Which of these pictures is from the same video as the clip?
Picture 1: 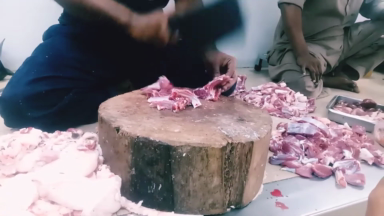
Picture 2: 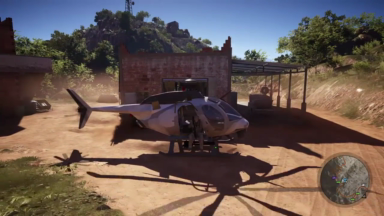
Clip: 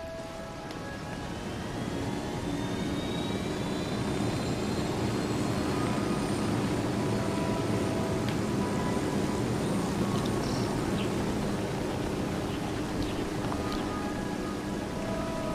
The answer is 2